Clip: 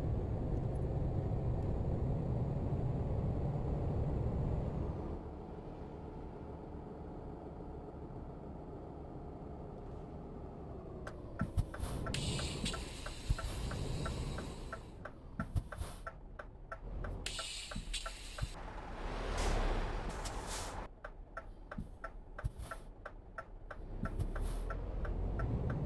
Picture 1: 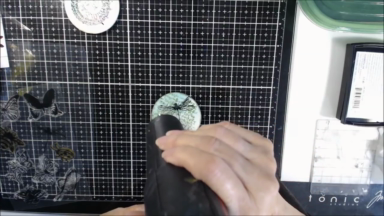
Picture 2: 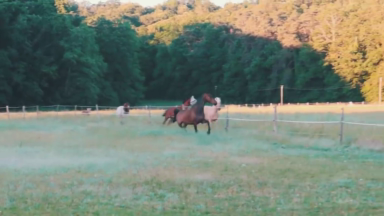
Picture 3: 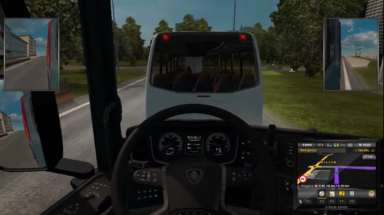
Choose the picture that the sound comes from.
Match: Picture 3